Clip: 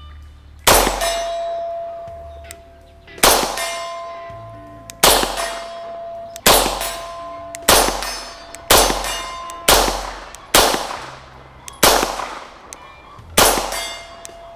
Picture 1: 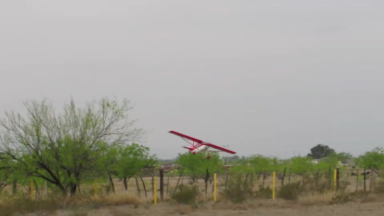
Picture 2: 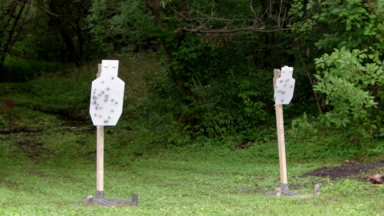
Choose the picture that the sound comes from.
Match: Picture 2